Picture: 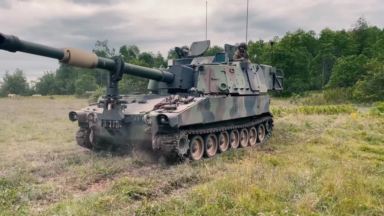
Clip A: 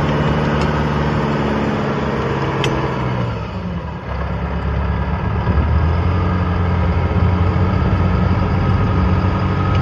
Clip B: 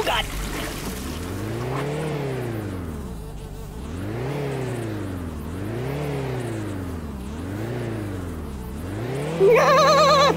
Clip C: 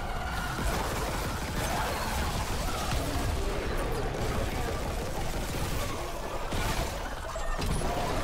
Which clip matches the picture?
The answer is A